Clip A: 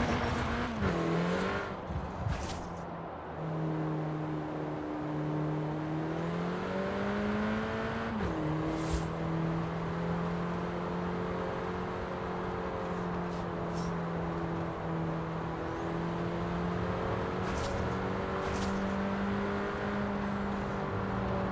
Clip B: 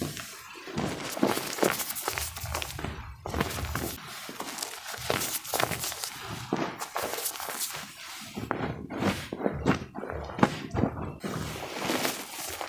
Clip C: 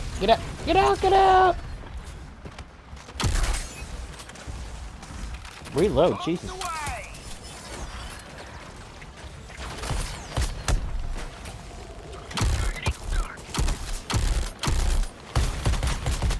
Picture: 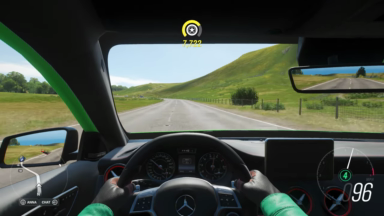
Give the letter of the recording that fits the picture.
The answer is A